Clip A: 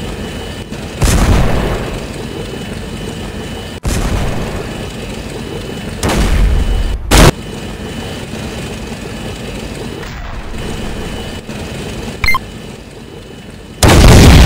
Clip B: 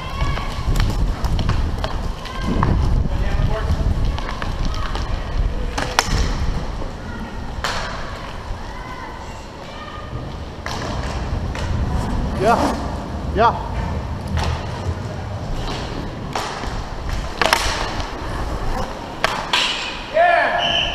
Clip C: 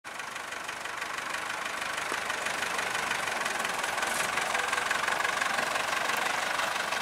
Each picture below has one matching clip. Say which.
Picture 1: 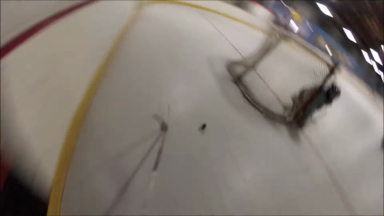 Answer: B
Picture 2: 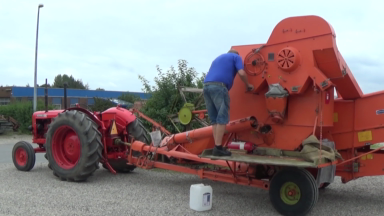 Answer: C